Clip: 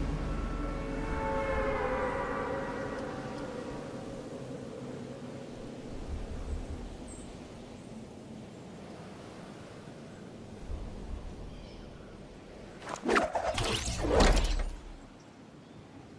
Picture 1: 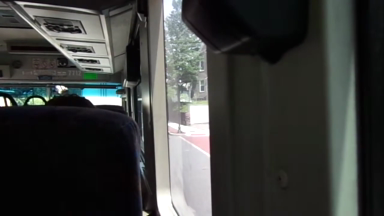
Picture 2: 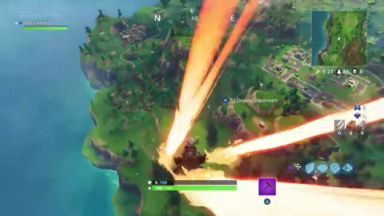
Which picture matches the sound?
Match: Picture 2